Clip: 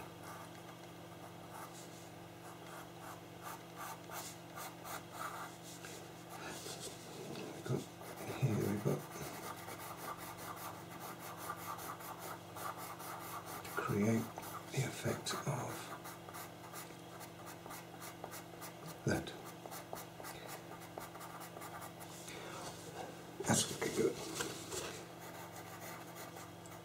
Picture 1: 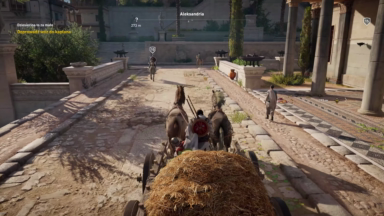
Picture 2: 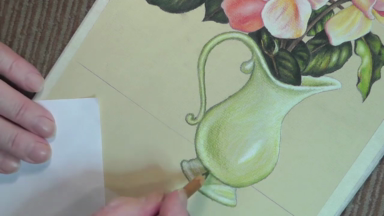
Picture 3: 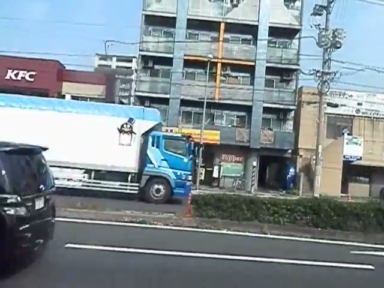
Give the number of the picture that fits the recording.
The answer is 2